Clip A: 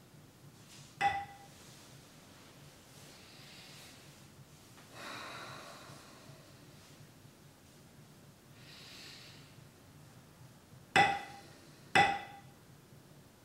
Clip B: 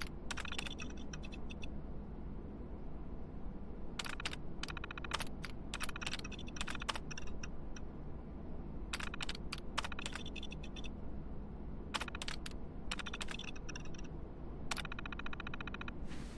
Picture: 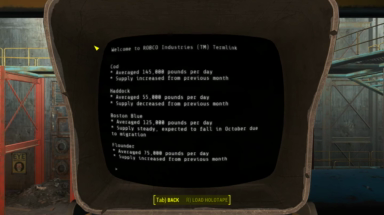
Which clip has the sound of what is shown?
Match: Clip B